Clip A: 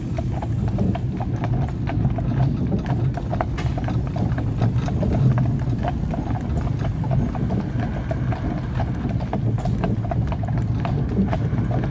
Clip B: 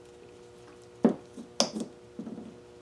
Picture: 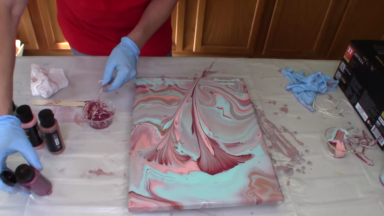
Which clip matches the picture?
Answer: B